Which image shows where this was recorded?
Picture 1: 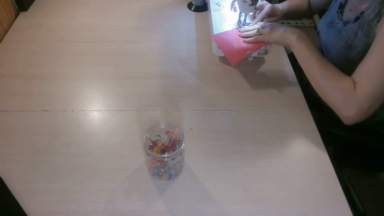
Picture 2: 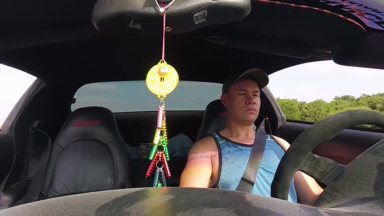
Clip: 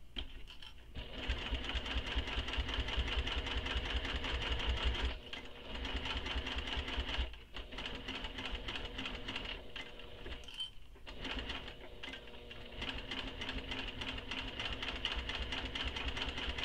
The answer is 1